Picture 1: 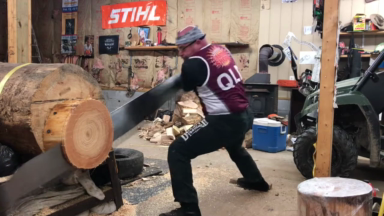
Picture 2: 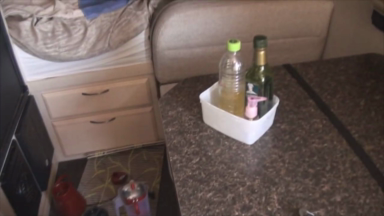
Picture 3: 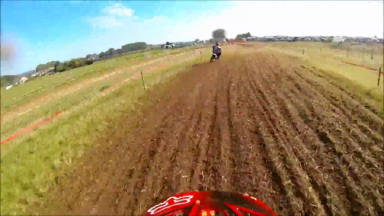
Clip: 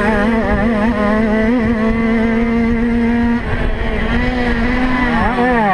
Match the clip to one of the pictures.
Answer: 3